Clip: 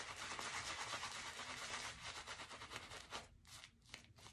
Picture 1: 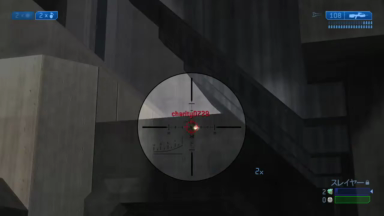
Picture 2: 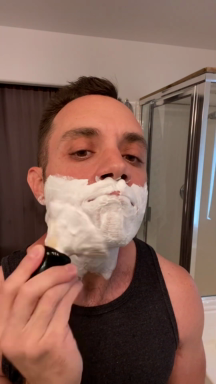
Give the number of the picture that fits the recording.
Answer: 2